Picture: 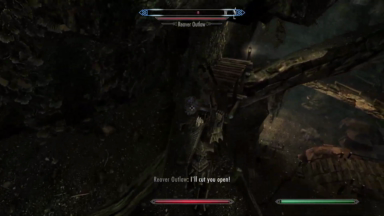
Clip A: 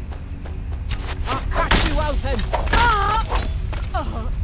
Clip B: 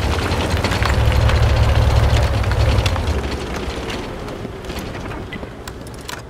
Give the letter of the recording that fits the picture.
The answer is A